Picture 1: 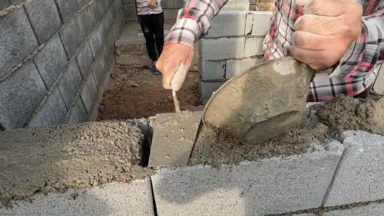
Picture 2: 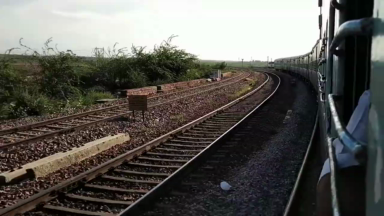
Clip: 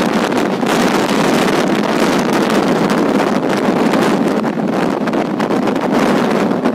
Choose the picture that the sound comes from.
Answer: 2